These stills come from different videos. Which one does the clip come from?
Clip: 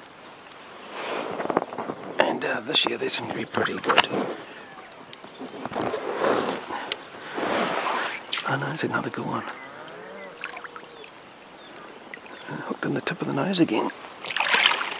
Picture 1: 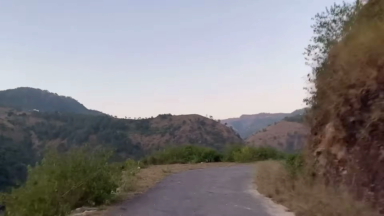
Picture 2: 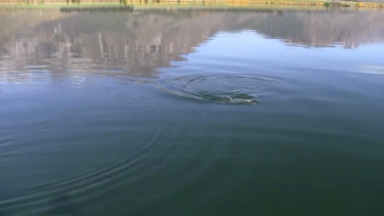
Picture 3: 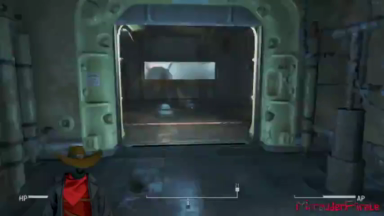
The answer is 2